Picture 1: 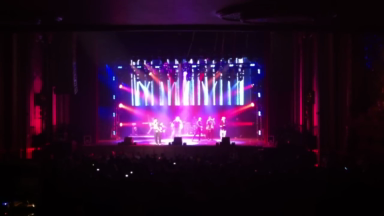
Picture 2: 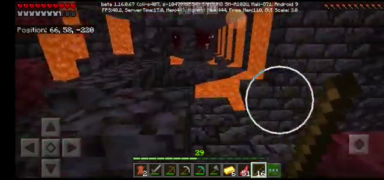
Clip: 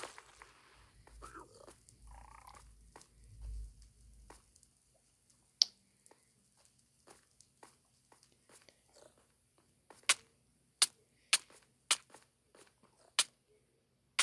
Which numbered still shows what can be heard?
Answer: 2